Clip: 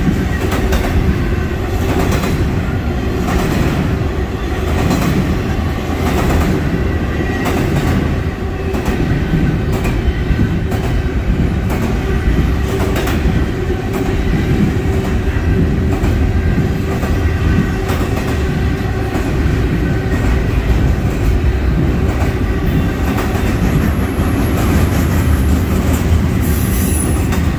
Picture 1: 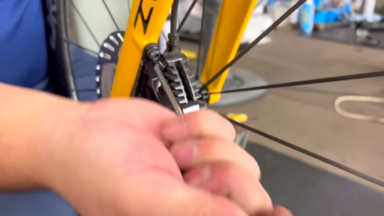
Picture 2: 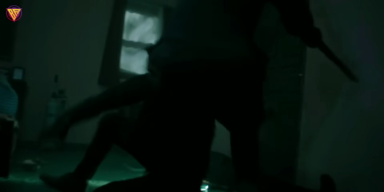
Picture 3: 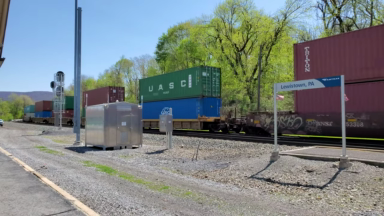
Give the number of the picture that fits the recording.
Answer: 3